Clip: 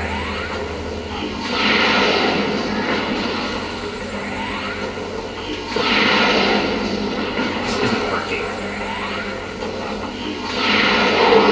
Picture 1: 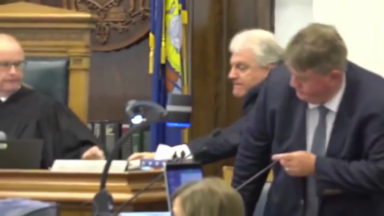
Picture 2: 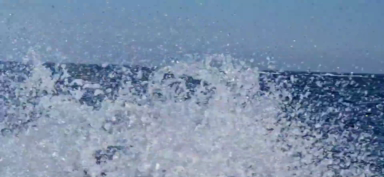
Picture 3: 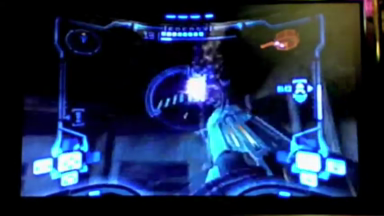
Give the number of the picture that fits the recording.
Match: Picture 3